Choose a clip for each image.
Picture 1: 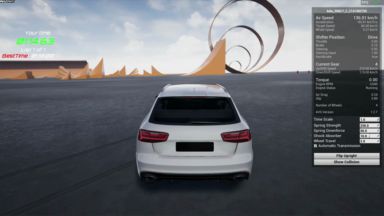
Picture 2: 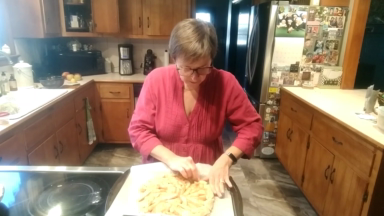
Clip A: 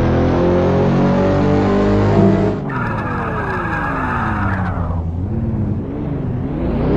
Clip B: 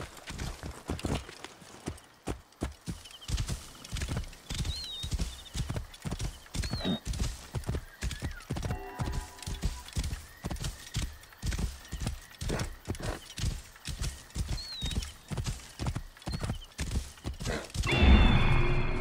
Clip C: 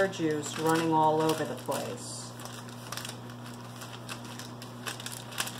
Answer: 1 A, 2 C